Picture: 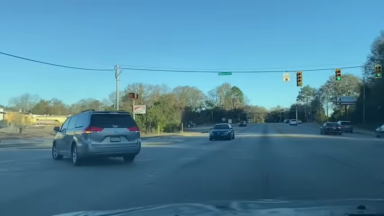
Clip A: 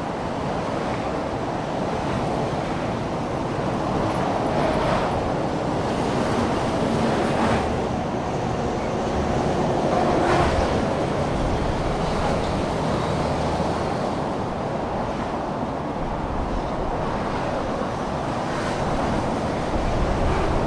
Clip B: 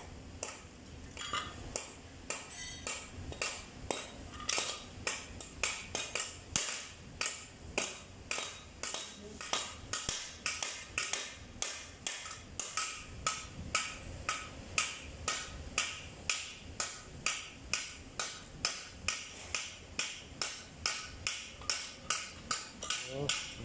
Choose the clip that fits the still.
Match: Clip A